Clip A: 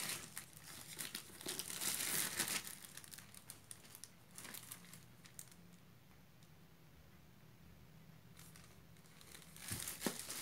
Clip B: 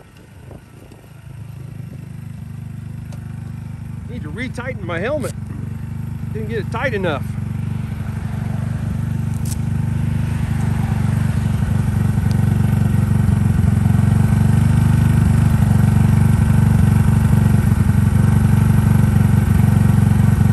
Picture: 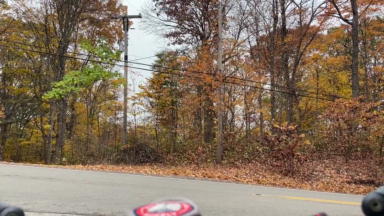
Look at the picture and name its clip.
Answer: B